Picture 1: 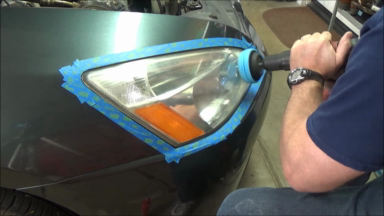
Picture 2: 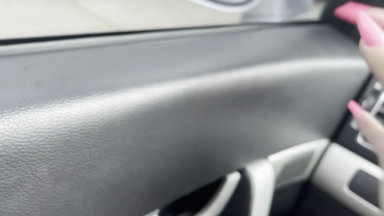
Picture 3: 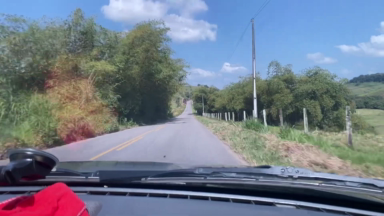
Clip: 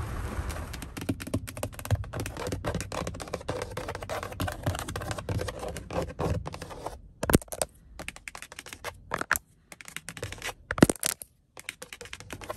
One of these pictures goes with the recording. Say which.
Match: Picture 2